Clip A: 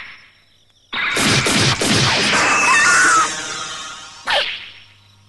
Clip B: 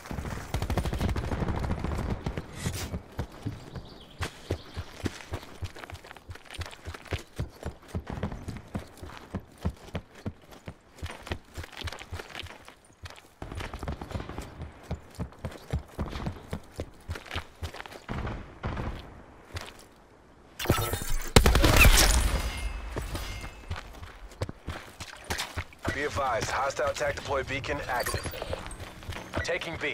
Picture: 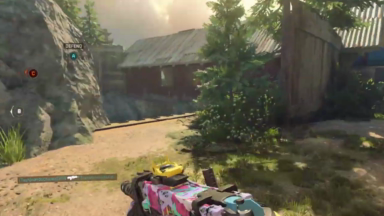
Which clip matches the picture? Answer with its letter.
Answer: B